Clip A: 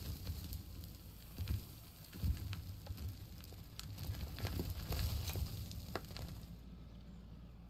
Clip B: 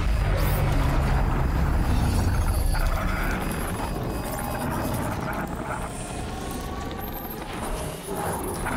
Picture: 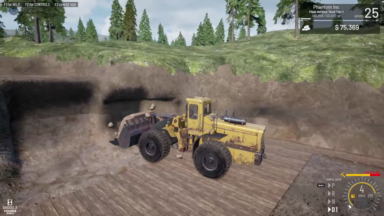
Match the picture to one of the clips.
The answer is A